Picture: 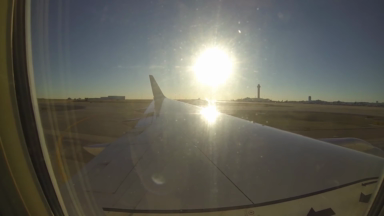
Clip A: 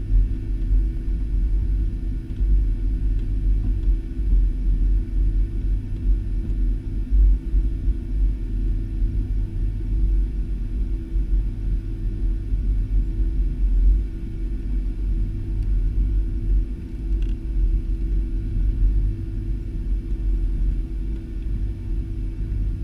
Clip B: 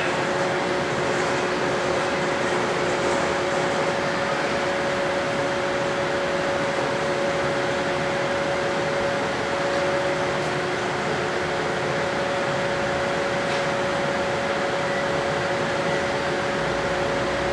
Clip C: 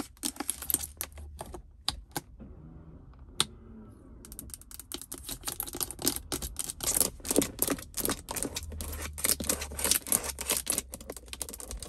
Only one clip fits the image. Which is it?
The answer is A